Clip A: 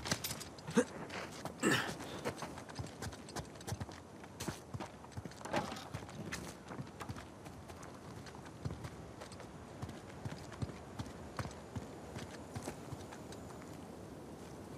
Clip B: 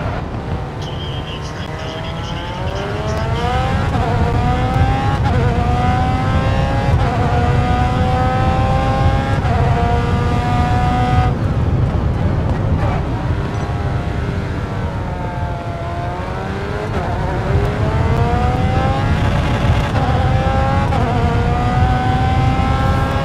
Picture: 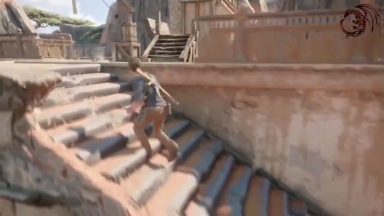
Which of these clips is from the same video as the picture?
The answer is A